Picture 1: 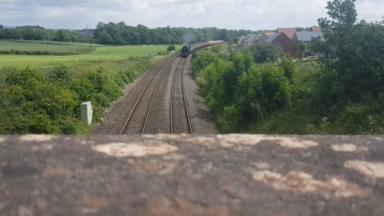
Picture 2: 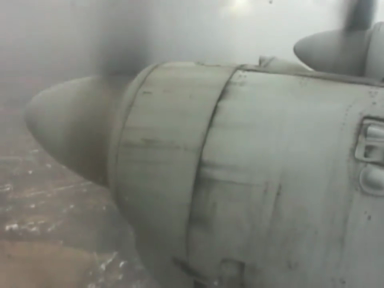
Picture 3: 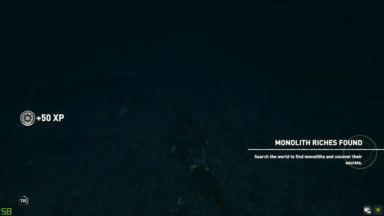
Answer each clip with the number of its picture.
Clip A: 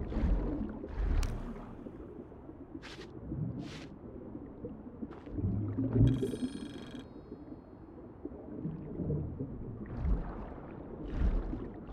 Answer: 3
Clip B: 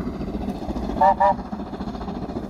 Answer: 1